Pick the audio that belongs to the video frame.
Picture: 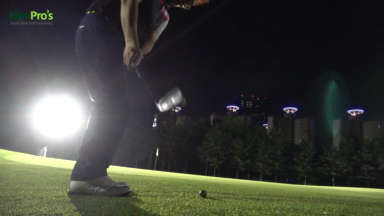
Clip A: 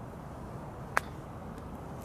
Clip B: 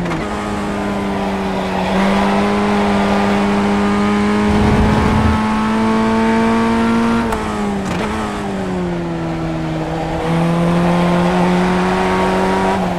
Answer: A